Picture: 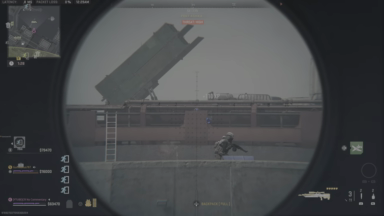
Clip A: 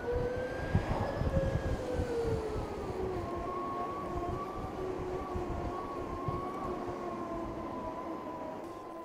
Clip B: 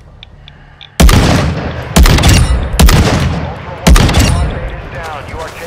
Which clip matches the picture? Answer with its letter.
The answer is B